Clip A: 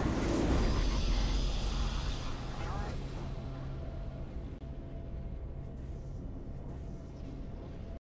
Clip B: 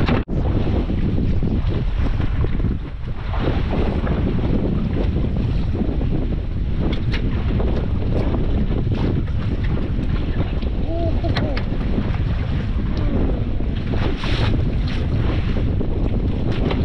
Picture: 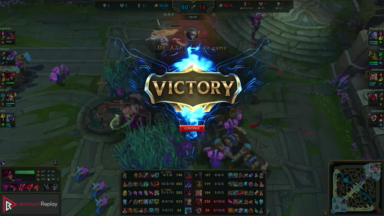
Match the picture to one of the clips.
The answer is A